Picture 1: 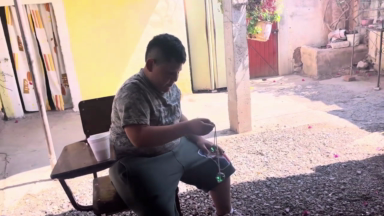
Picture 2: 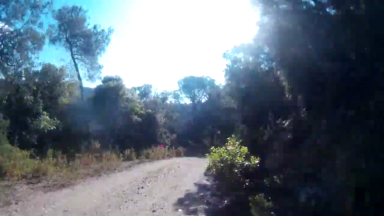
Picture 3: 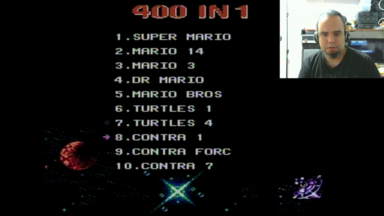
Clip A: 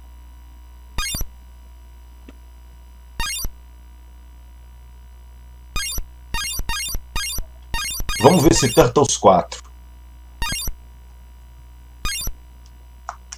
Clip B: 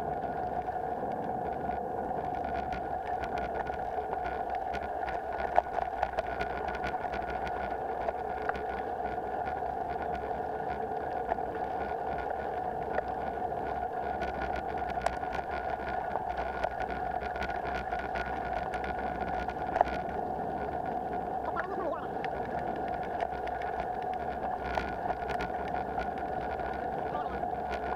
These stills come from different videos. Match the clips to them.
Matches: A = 3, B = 2